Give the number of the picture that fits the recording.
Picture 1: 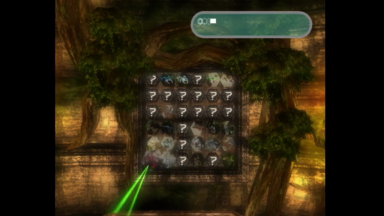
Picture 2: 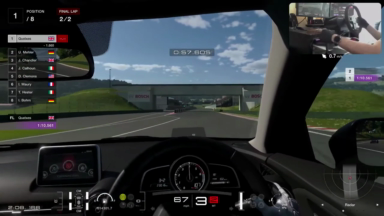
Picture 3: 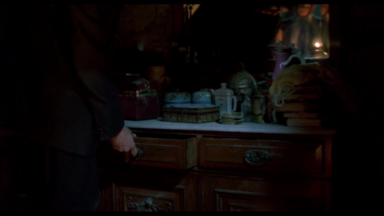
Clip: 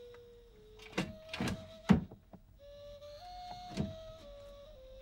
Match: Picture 3